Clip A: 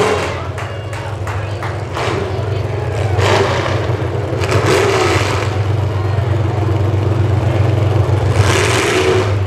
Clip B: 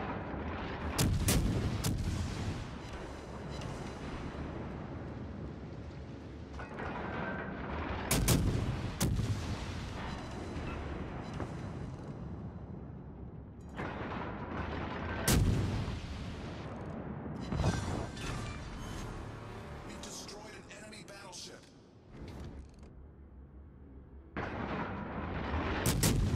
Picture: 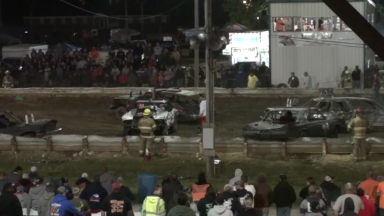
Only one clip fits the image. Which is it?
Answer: A